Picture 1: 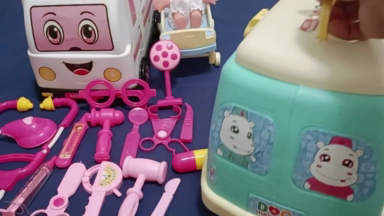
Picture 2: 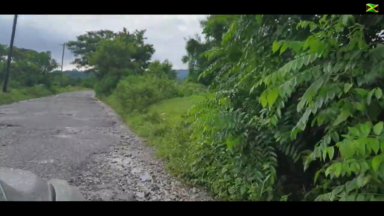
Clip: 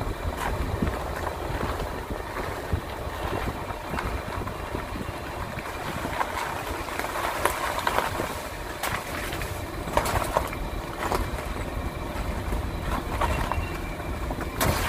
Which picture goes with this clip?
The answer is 2